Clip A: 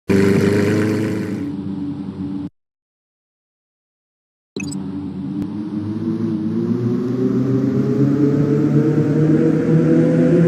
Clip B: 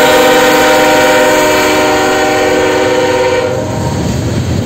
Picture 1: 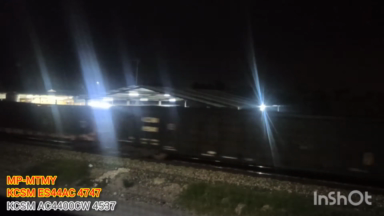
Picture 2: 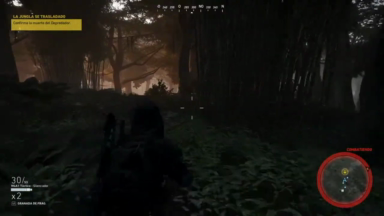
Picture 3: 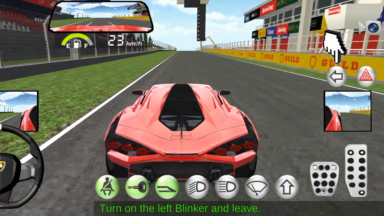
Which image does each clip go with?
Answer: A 3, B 1